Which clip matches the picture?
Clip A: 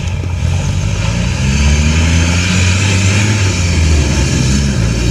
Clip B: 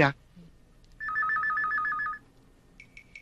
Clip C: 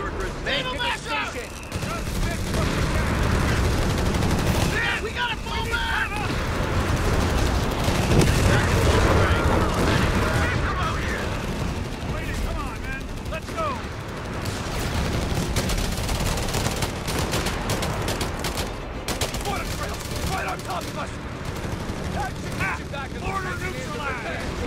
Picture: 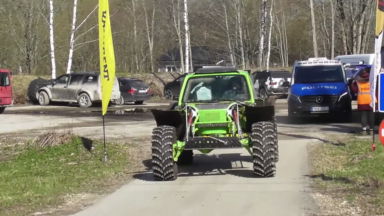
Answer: A